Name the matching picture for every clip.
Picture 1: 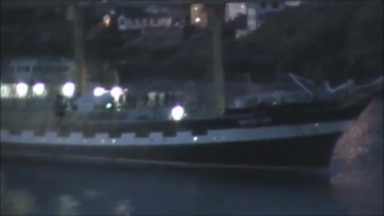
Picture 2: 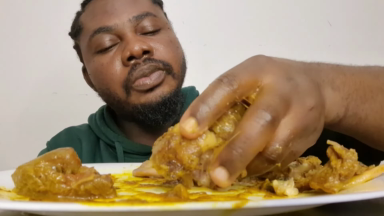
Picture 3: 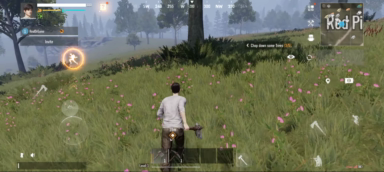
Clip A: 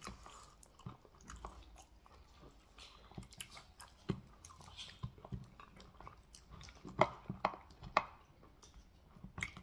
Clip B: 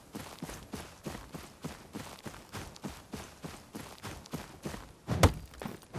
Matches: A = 2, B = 3